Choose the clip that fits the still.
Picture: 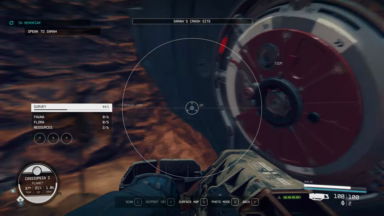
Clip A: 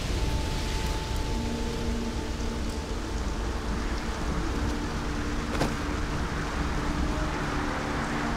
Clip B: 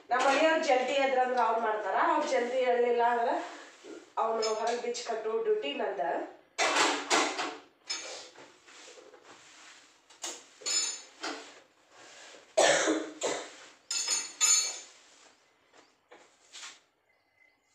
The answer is A